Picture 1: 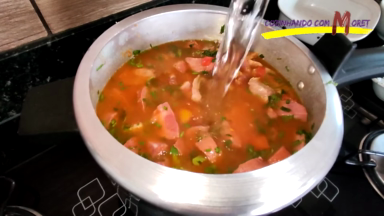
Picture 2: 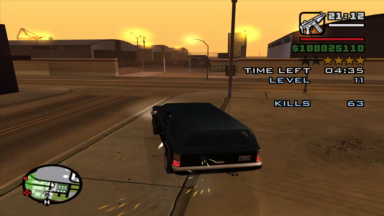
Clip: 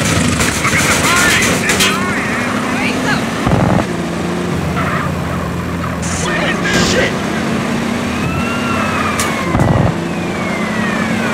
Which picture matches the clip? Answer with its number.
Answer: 2